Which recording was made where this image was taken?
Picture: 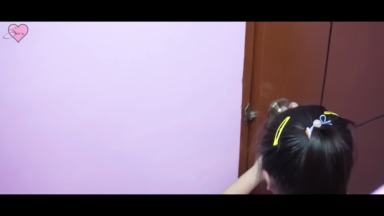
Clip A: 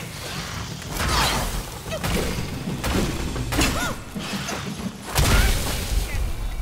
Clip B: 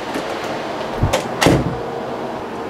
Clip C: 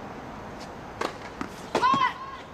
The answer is B